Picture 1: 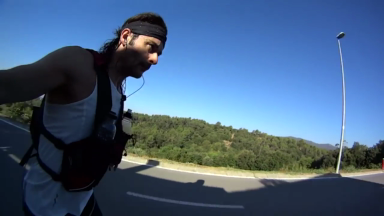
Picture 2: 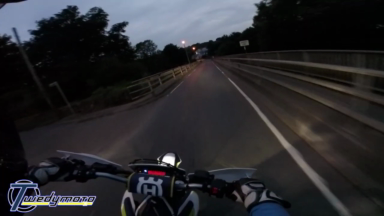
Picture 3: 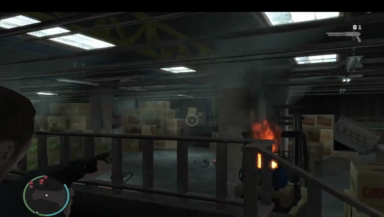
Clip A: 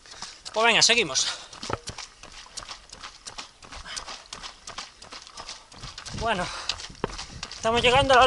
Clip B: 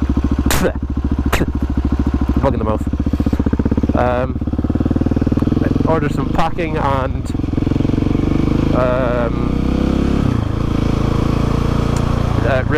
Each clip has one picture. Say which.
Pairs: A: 1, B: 2